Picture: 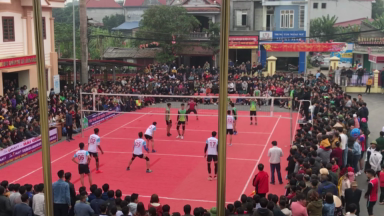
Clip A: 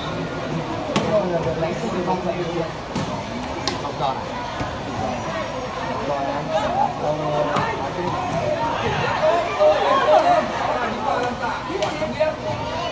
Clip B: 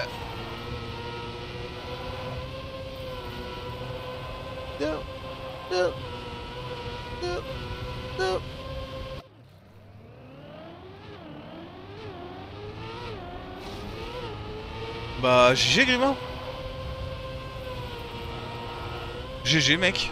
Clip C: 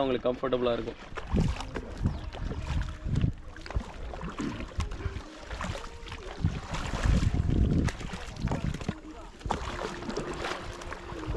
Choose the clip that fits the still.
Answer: A